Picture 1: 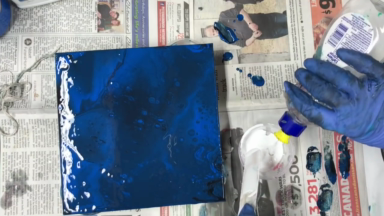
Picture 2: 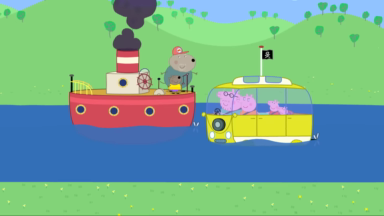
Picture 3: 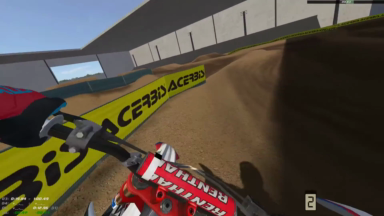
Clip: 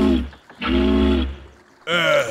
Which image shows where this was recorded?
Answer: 2